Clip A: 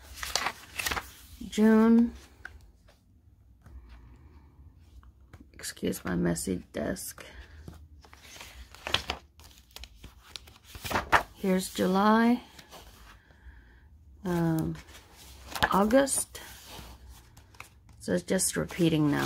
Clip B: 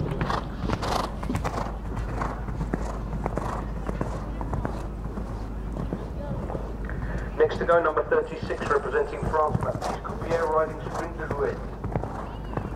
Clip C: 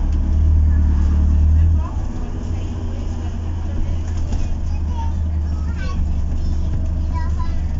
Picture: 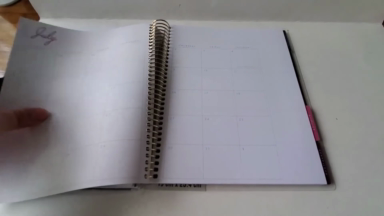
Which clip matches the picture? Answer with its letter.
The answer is A